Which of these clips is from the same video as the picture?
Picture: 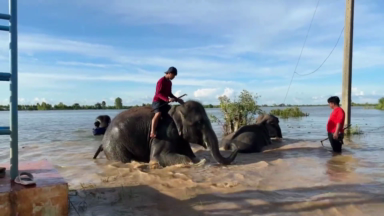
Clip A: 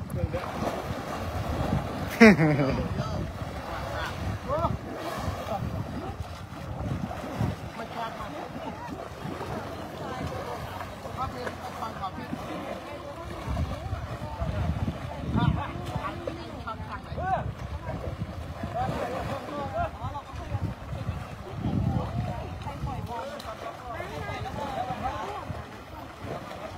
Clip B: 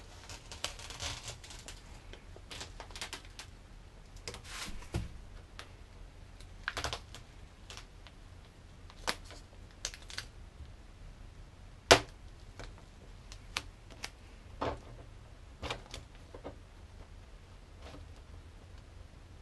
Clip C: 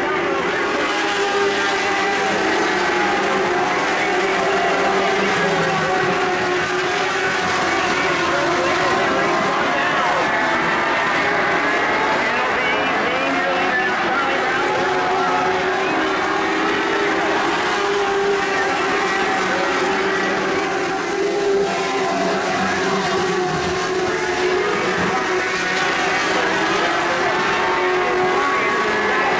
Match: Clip A